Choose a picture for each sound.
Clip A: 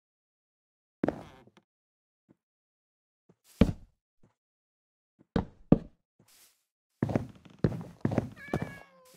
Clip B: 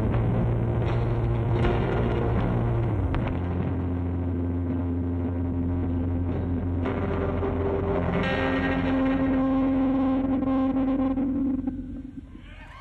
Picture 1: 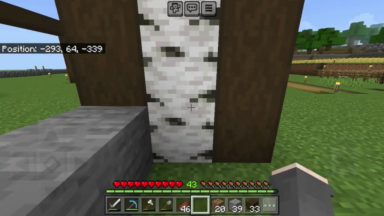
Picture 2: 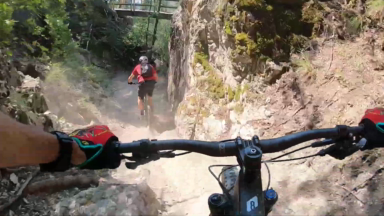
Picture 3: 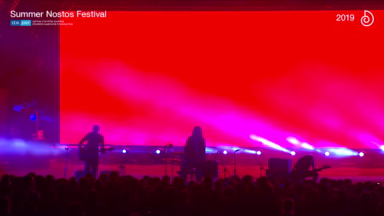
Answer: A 1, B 3